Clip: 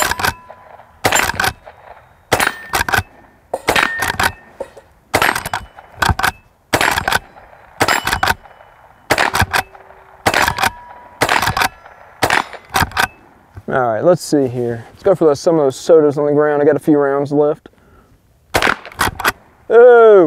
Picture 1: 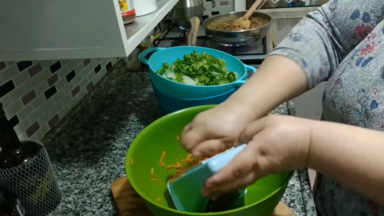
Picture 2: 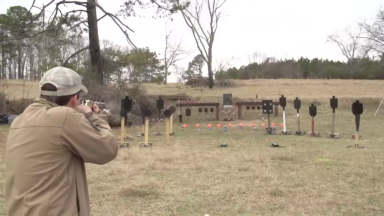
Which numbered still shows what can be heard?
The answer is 2